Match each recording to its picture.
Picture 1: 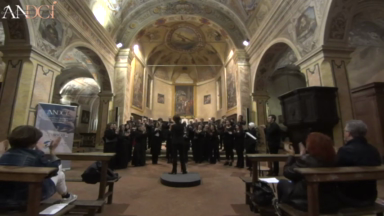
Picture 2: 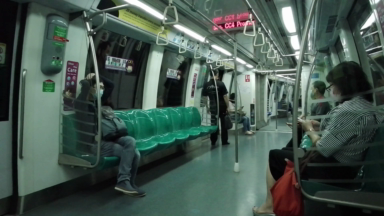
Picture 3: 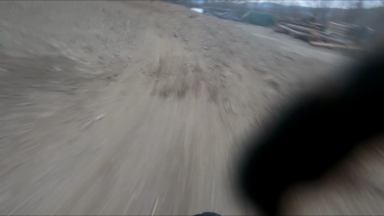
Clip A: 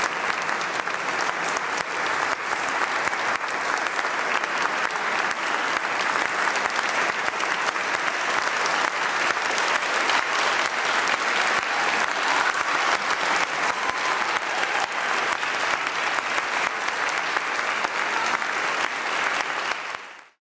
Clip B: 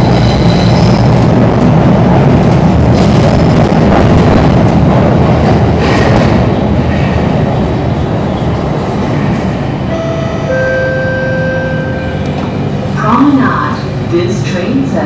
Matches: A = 1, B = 2